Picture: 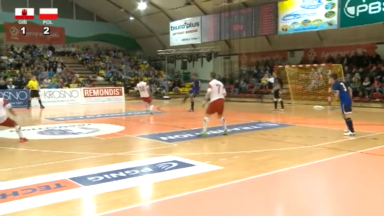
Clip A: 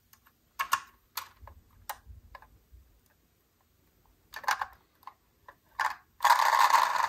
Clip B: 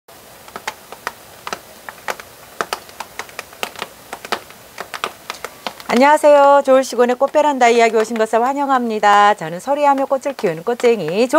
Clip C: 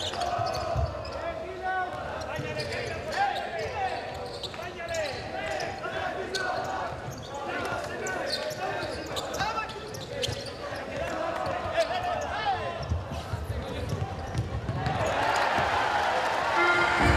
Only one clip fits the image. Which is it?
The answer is C